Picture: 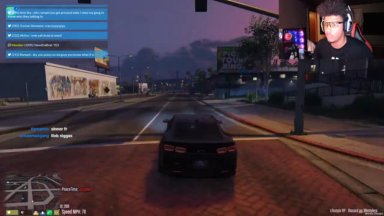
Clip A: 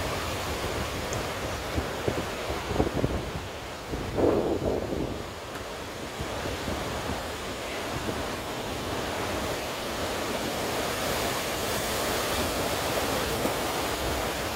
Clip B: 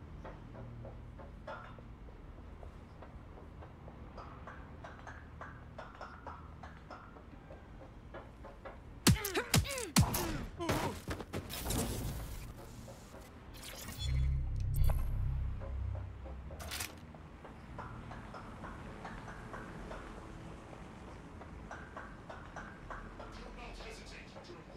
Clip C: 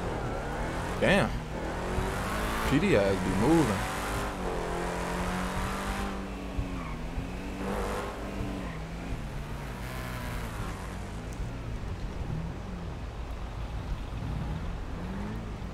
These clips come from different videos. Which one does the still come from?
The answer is C